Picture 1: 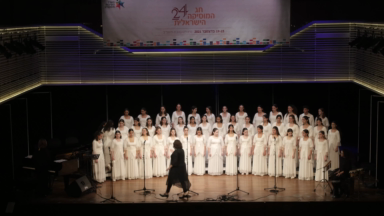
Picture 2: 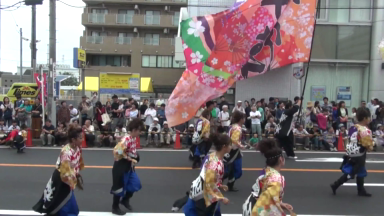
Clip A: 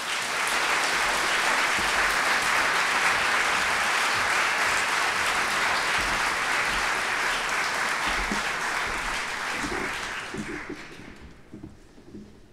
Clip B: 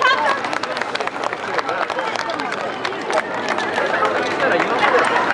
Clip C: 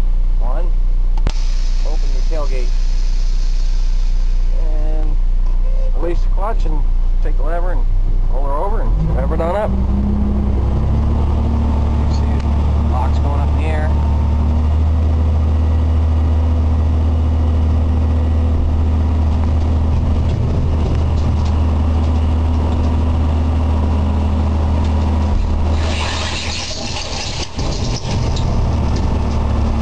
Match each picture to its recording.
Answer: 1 A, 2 B